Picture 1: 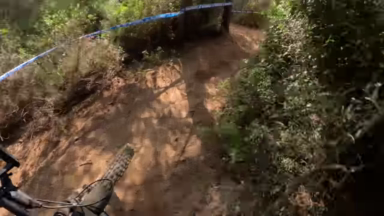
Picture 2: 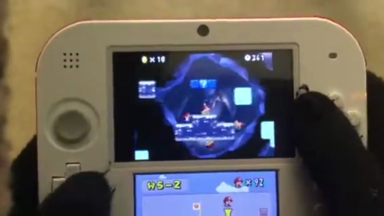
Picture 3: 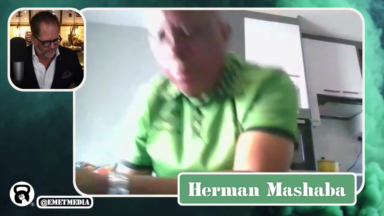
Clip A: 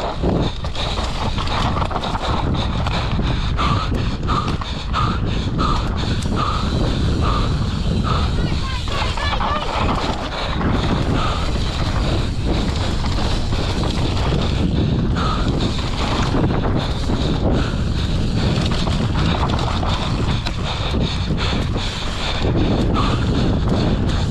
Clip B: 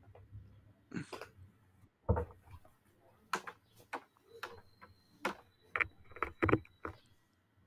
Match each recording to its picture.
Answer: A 1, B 3